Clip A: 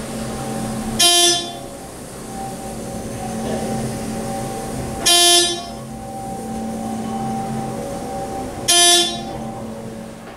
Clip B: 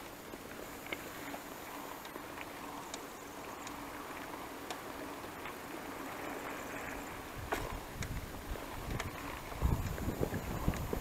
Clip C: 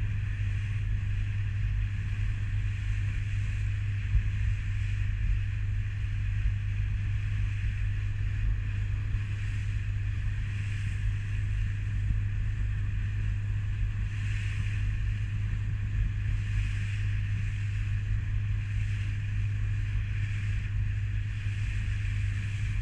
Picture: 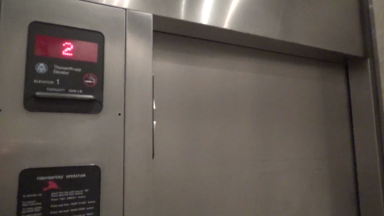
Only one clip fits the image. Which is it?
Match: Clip A